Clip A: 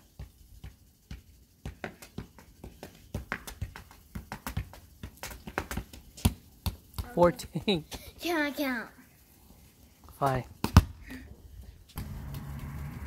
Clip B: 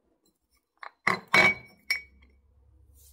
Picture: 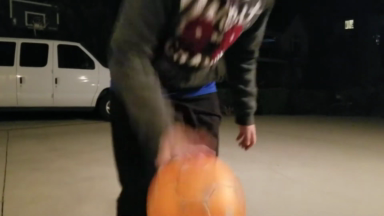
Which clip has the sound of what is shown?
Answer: A